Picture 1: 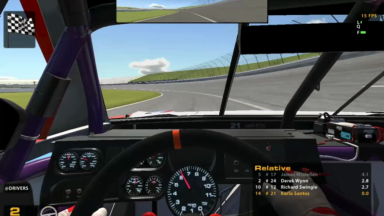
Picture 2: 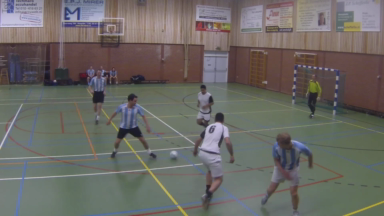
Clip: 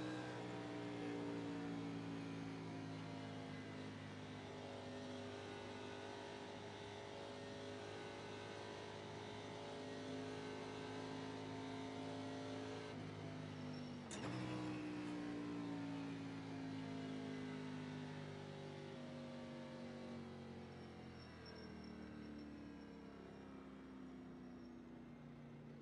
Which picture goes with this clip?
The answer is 1